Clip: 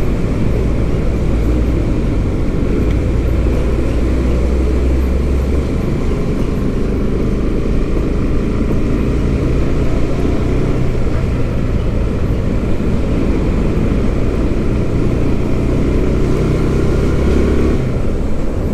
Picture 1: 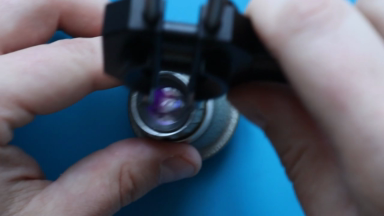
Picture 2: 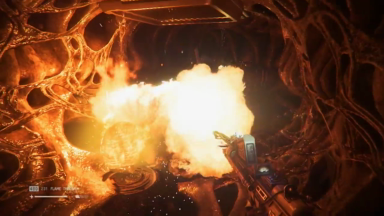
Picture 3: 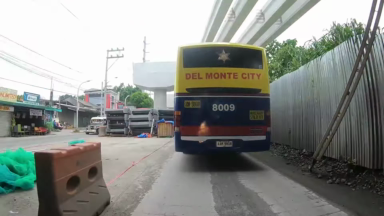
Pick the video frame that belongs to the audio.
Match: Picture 3